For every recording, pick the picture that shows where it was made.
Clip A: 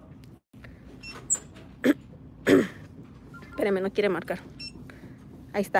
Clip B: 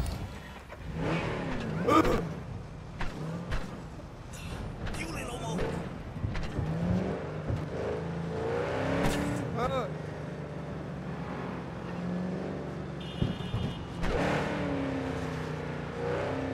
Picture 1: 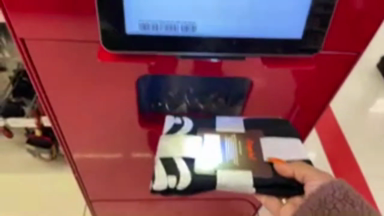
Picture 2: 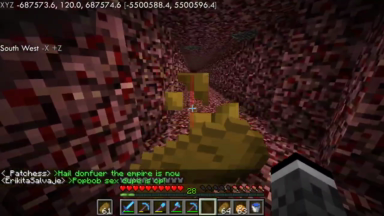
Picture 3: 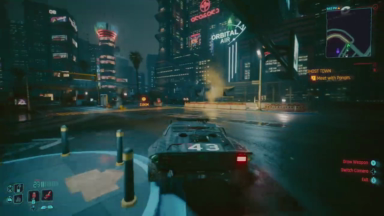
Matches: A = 1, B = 3